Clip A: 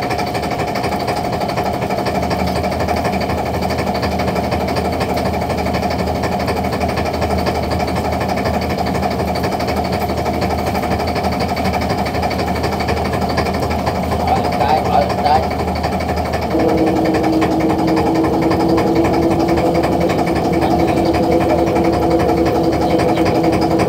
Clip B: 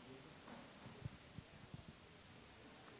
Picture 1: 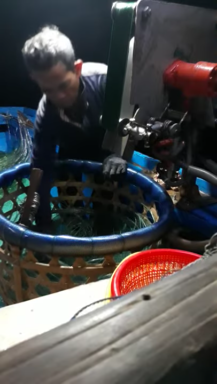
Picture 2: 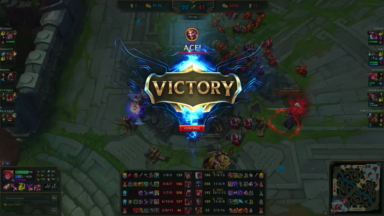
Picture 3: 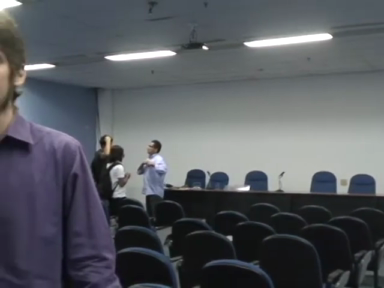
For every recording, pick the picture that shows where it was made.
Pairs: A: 1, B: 3